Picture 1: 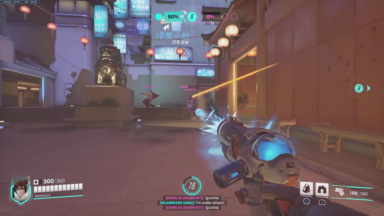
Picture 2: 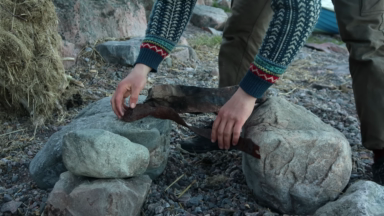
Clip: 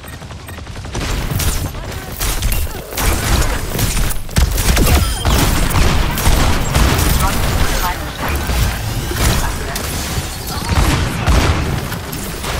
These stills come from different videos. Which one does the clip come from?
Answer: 1